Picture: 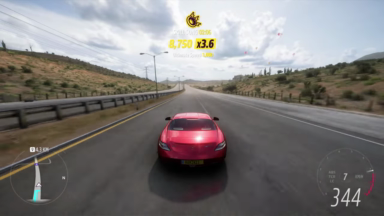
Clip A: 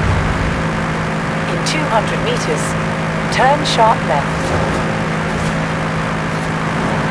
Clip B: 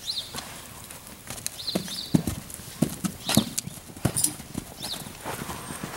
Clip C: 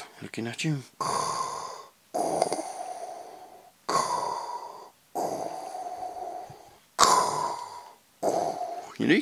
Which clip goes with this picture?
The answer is A